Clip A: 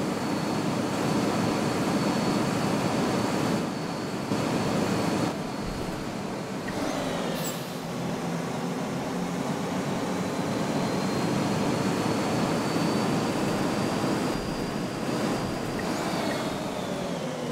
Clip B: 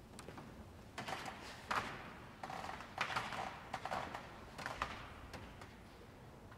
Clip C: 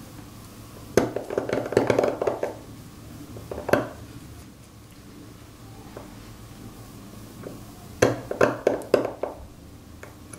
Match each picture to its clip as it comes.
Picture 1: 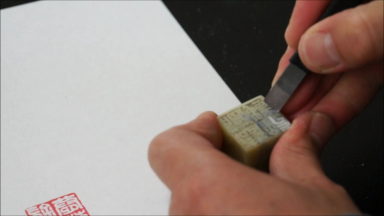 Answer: C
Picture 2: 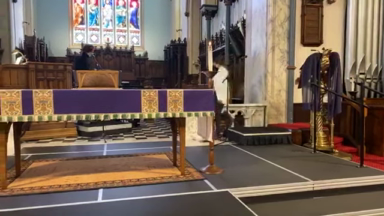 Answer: B